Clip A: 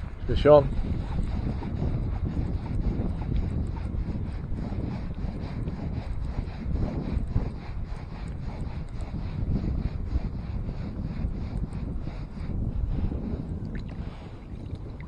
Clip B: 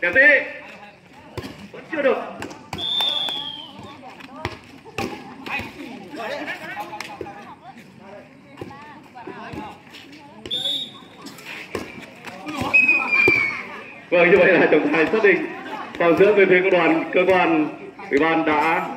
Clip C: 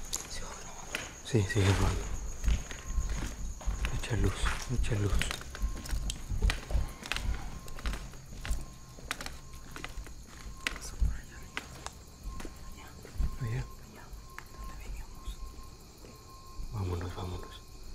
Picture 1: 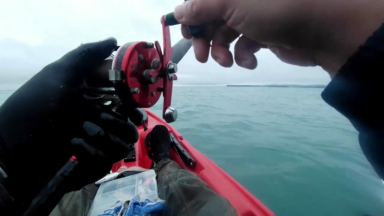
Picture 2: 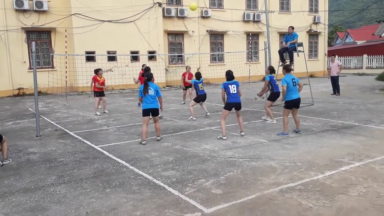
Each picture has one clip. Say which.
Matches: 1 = A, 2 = B